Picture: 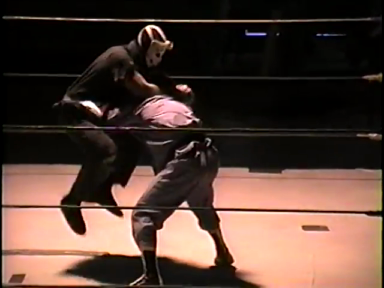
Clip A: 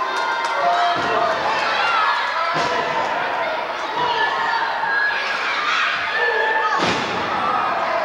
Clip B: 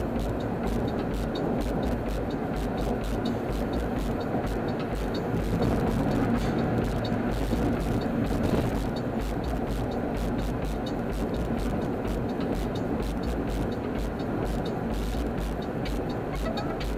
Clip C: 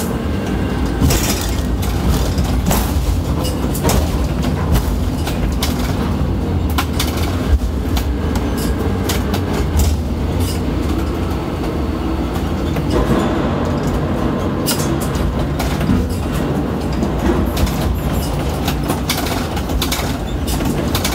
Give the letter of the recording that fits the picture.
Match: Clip A